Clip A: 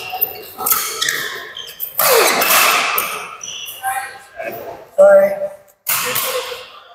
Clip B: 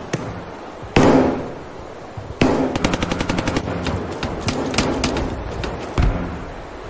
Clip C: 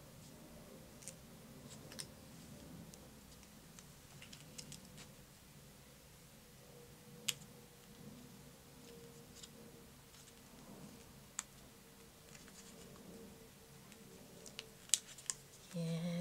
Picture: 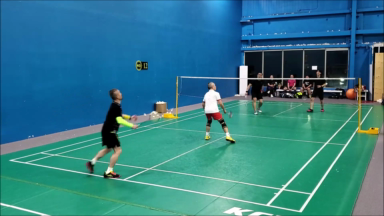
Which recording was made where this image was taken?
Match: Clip A